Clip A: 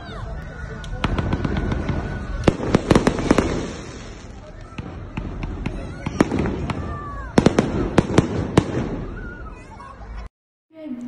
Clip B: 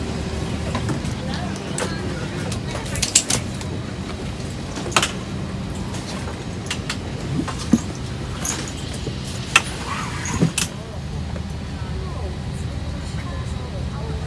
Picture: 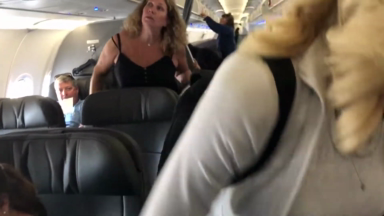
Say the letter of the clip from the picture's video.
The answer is B